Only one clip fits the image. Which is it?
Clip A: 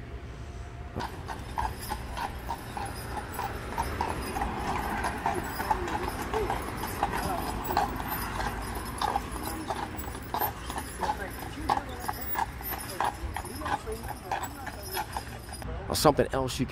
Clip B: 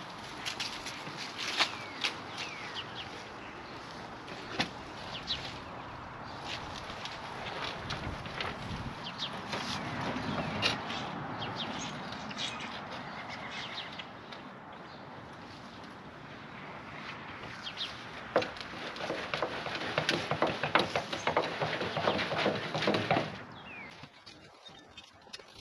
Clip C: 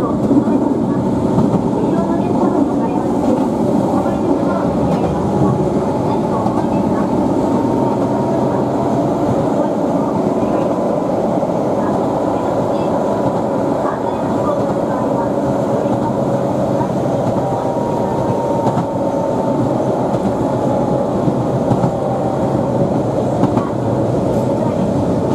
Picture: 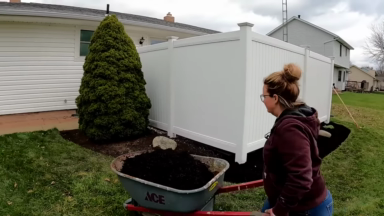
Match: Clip B